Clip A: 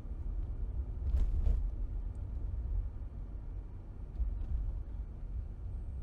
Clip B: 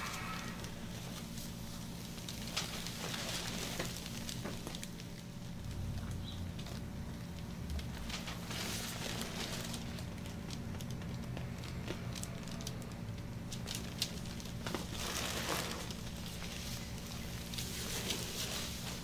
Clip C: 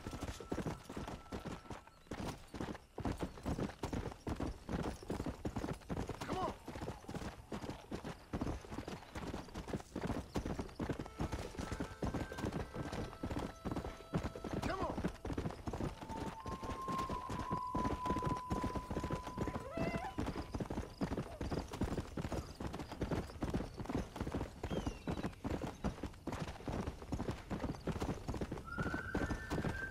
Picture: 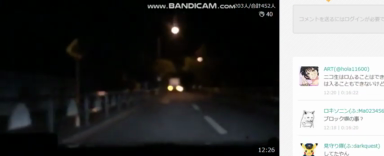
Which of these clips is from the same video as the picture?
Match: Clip A